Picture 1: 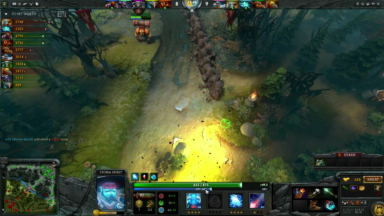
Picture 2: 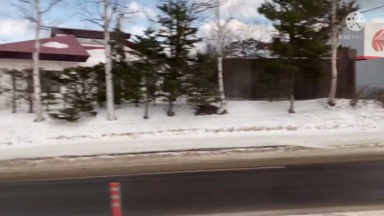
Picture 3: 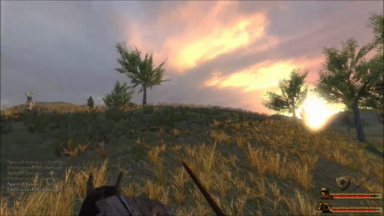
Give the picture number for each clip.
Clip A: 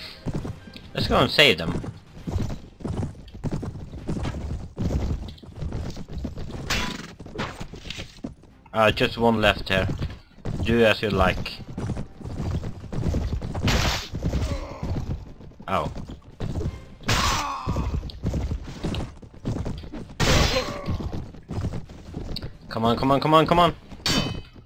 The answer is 3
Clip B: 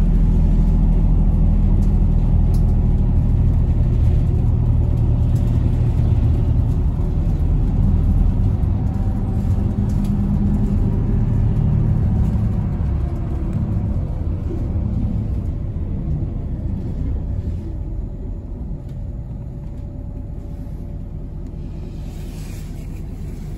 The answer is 2